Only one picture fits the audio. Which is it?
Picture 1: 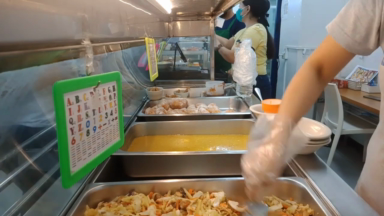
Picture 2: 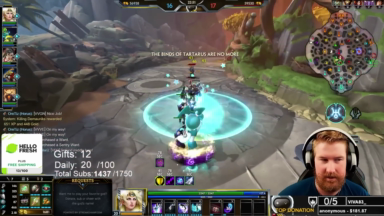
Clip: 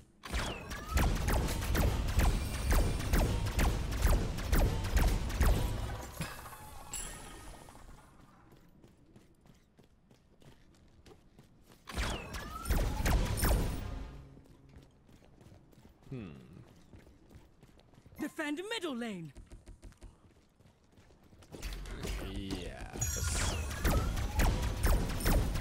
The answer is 2